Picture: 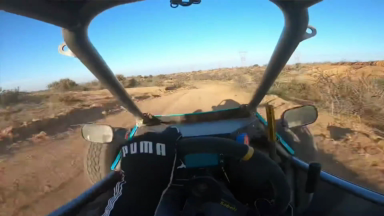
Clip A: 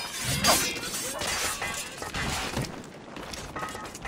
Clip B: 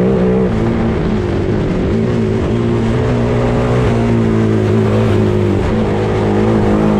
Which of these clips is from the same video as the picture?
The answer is B